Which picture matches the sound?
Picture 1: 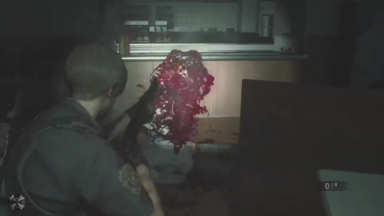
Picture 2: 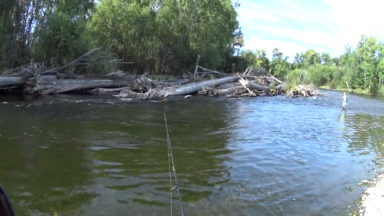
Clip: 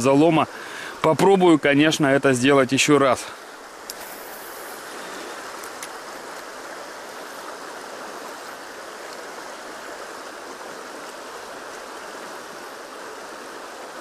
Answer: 2